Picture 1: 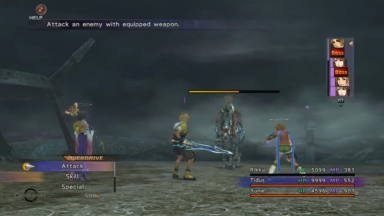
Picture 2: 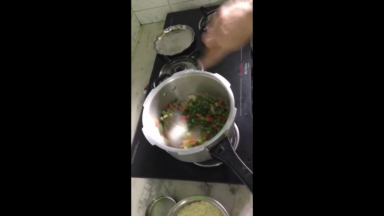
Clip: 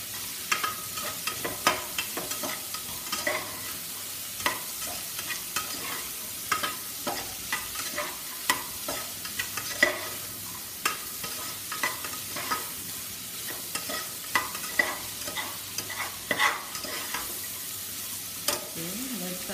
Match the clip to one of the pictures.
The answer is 2